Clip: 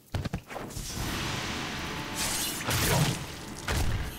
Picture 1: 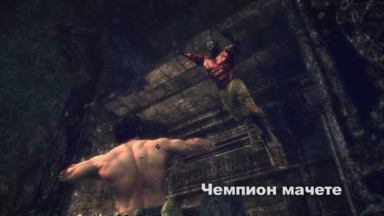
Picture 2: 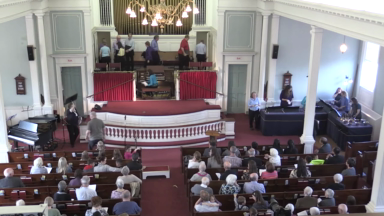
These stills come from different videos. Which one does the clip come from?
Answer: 1